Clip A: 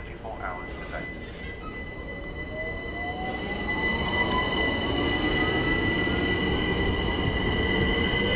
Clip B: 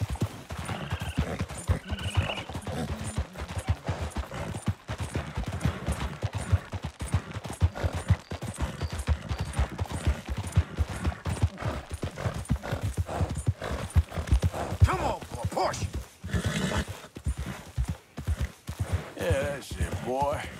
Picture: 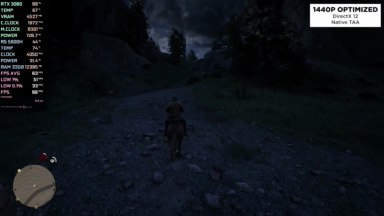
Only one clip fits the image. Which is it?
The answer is B